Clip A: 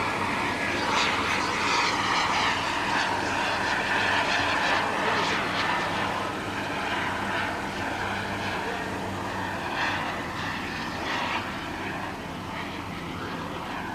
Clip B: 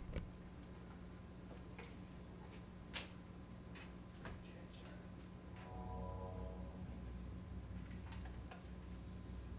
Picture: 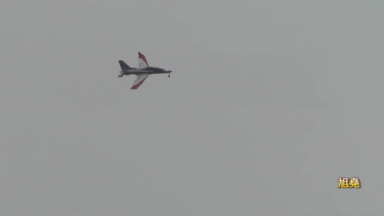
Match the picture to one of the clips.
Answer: A